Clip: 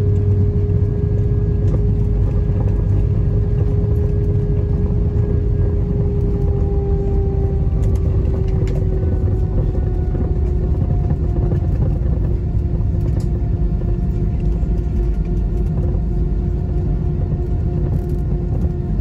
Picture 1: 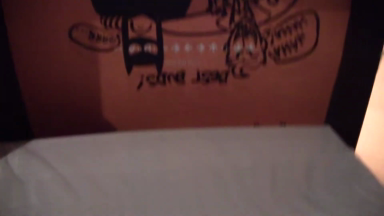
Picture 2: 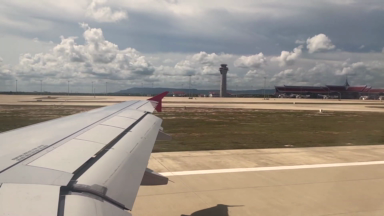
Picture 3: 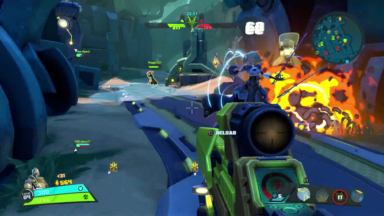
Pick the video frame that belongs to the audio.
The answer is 2